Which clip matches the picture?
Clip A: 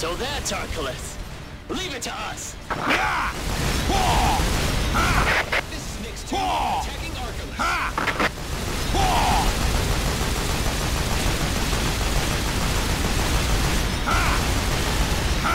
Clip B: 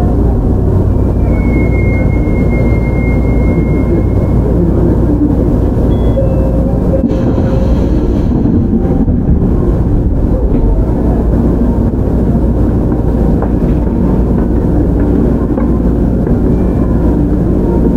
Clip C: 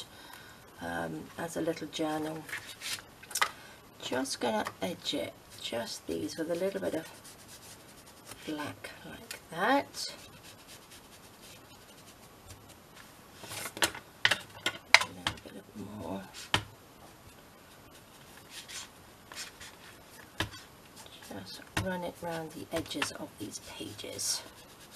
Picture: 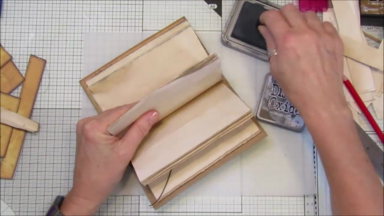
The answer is C